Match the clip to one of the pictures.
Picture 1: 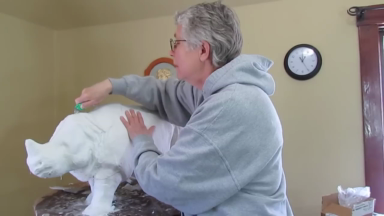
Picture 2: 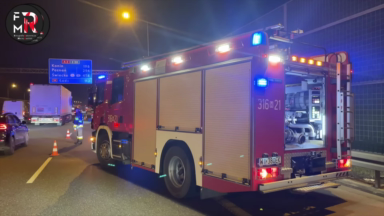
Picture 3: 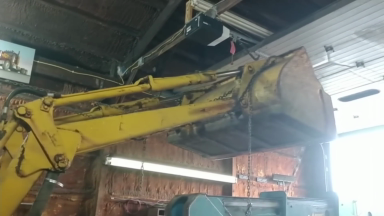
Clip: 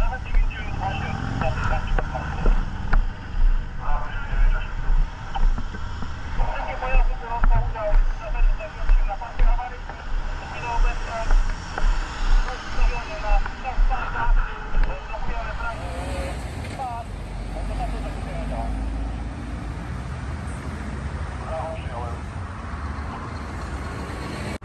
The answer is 2